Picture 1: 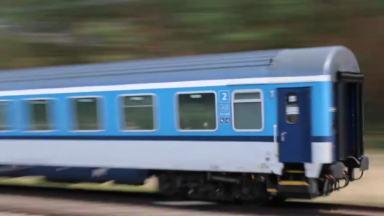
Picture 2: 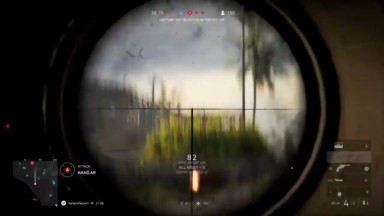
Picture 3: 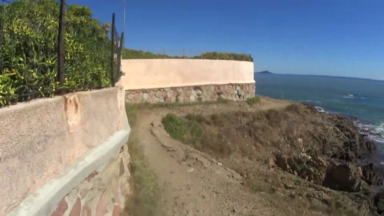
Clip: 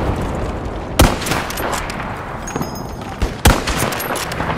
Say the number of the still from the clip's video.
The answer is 2